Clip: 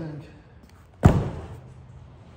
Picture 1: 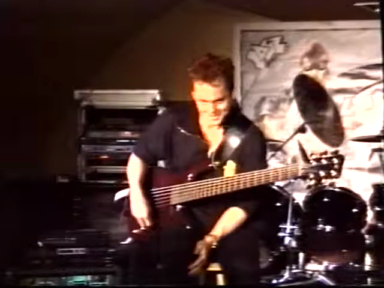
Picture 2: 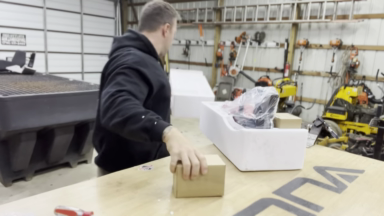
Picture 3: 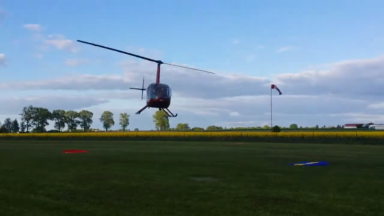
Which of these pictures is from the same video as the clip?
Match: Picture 2